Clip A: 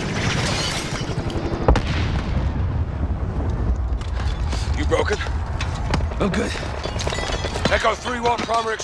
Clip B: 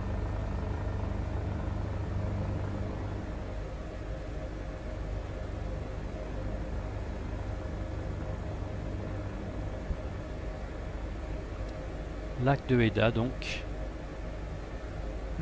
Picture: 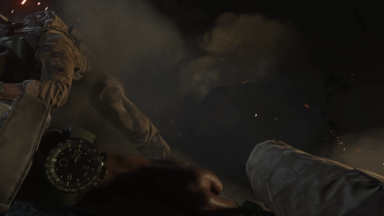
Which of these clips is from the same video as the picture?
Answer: A